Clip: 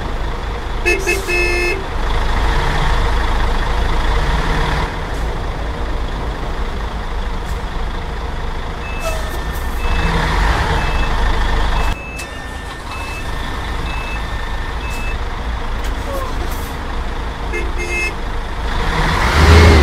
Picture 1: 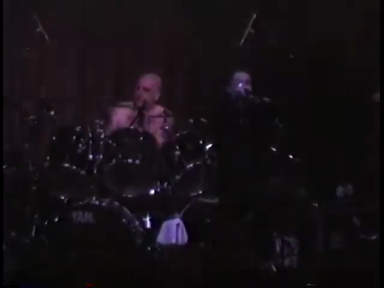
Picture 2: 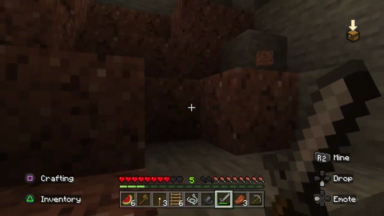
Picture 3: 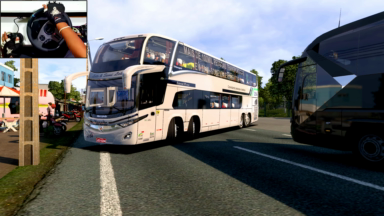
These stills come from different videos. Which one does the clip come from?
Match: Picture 3